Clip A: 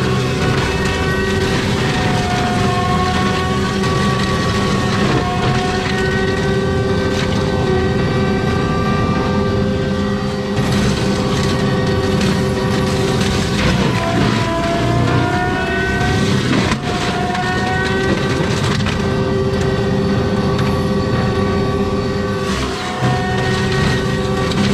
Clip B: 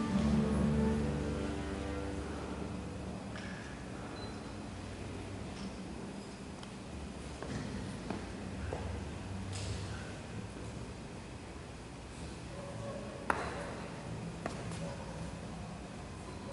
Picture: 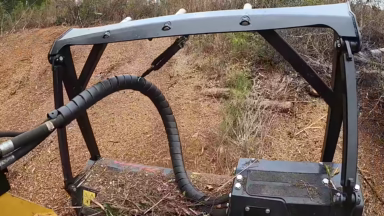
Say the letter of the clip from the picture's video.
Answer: A